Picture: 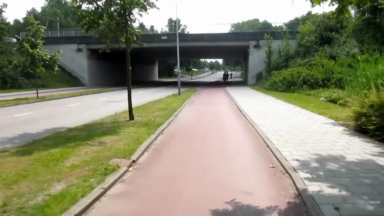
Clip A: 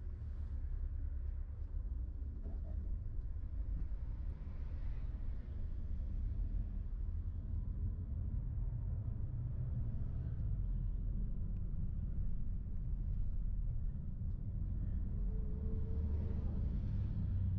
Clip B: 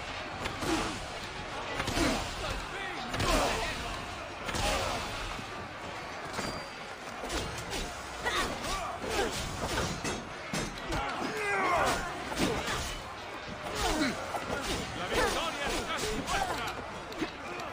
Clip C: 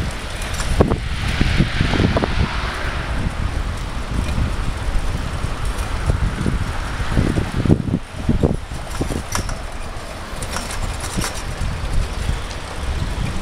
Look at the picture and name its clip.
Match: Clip C